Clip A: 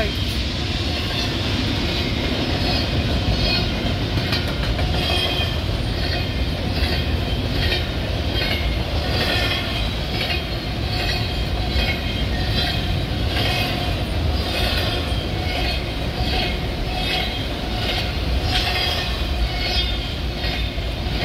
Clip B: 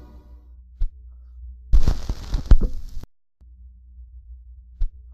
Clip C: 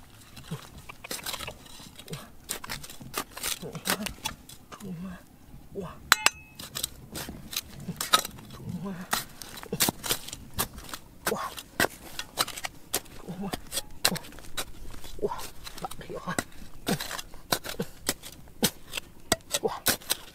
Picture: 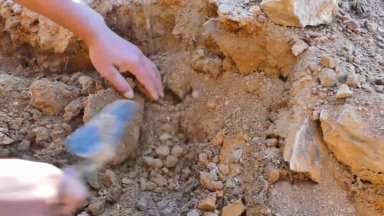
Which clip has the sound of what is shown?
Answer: C